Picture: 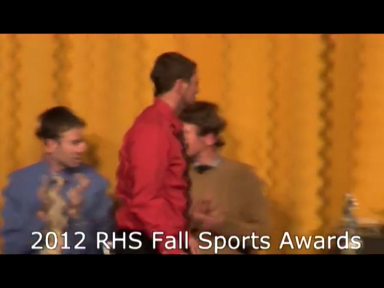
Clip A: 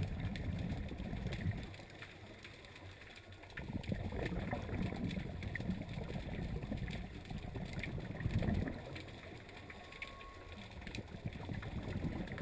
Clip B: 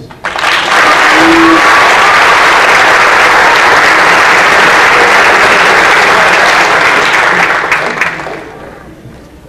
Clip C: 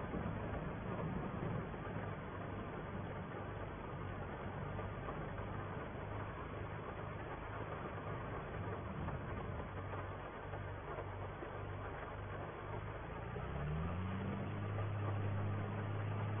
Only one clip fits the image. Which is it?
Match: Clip B